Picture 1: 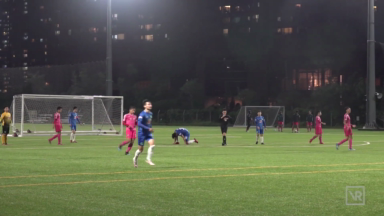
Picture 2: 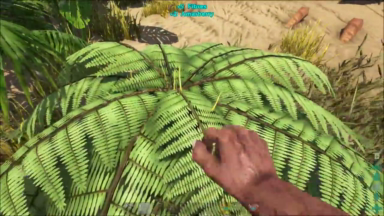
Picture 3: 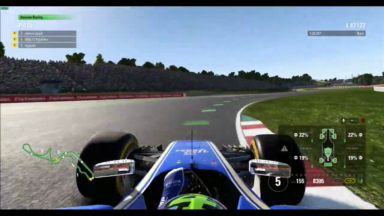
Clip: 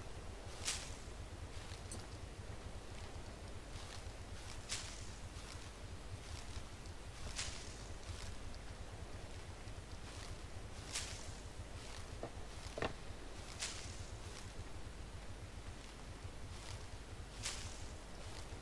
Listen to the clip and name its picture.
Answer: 2